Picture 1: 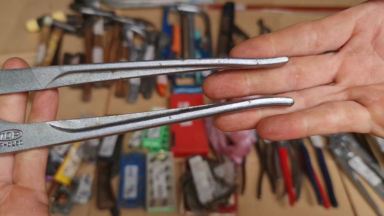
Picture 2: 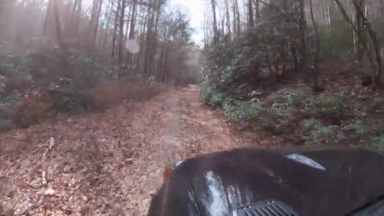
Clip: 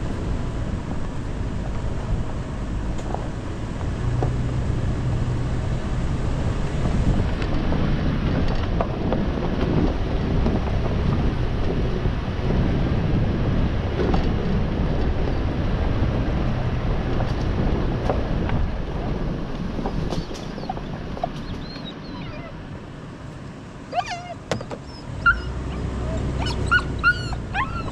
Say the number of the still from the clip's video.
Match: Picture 2